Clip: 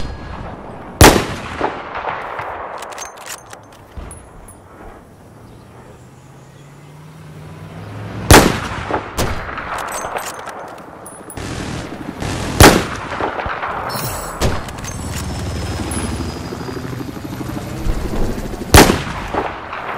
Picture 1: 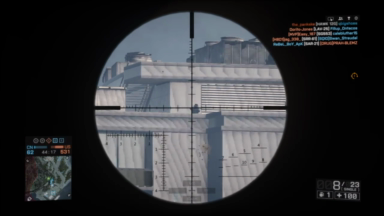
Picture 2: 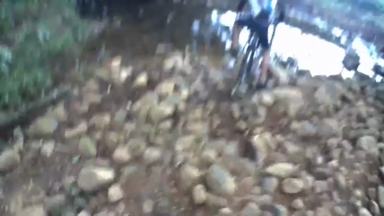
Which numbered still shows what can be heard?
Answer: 1